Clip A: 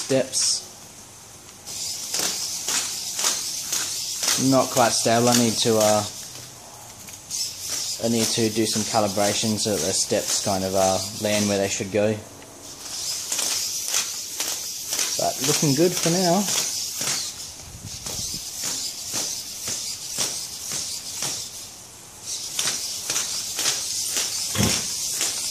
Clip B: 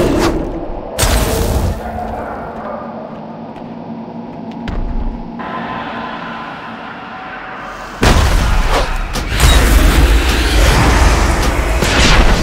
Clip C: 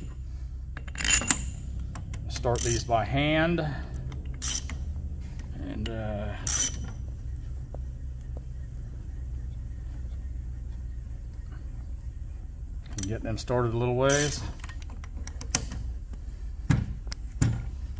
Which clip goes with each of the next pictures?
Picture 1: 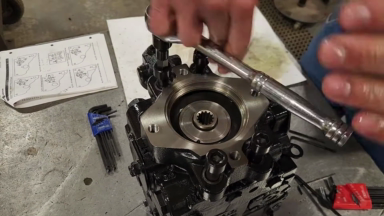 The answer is C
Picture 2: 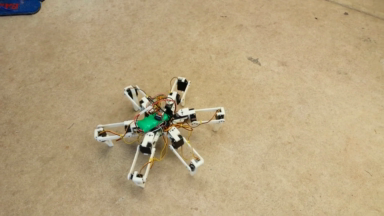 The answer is A